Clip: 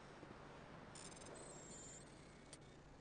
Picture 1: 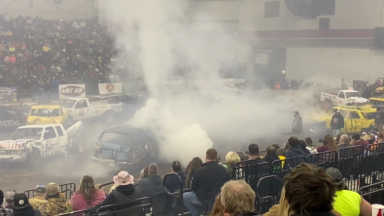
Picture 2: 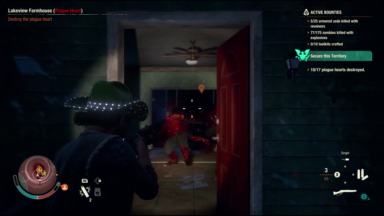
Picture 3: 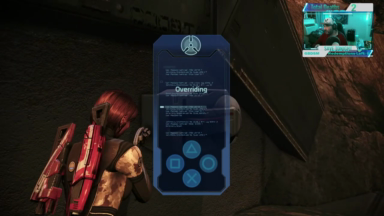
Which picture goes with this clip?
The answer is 3